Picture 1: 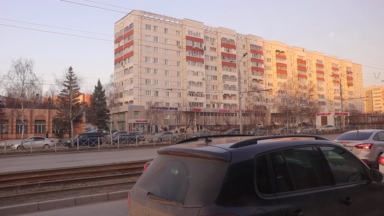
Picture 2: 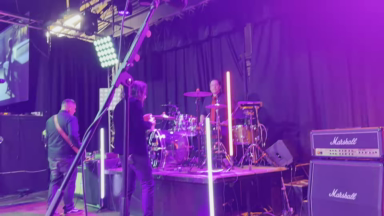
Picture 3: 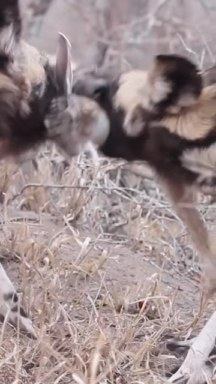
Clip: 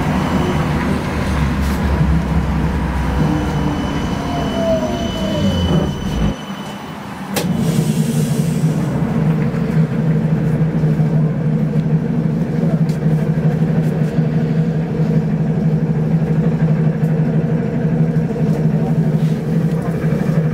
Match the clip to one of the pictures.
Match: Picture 1